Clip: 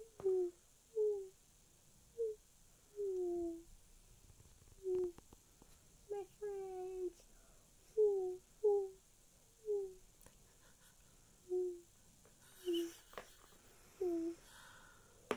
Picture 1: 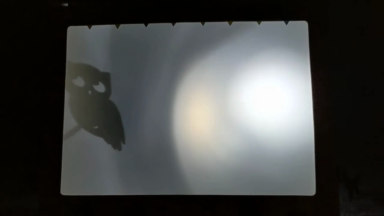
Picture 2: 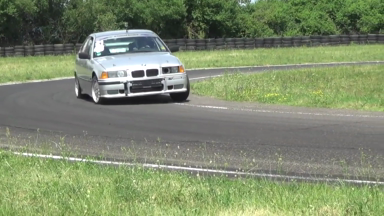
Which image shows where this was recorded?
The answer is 1